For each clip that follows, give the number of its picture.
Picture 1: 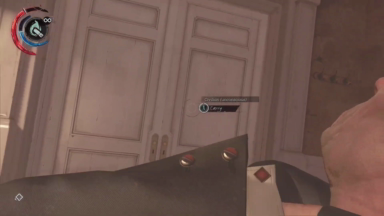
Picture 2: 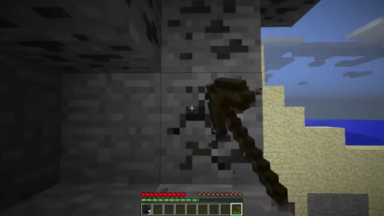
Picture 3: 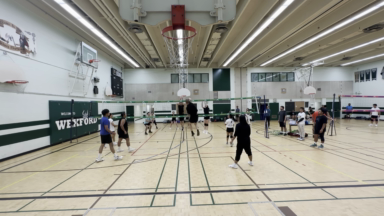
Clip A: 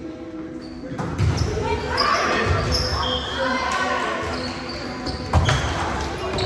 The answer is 3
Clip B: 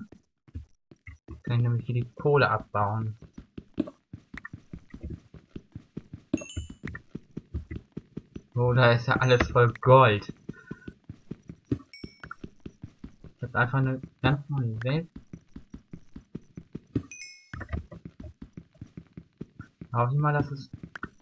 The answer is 2